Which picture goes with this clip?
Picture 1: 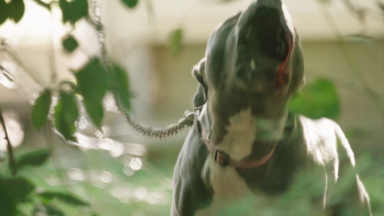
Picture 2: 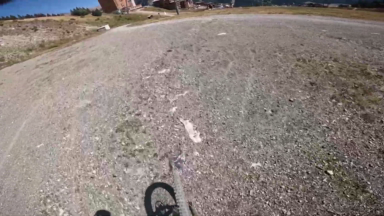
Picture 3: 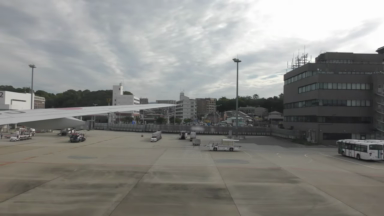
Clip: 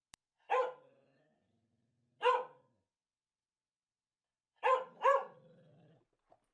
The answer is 1